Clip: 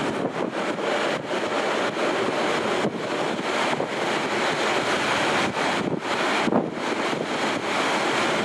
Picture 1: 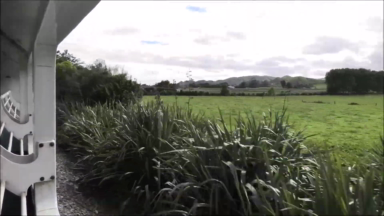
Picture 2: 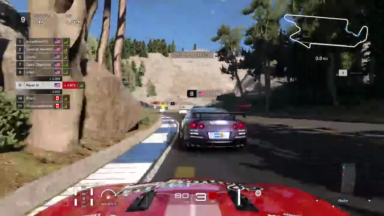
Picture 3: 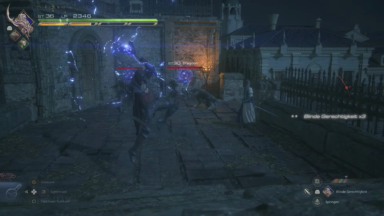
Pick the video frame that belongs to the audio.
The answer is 1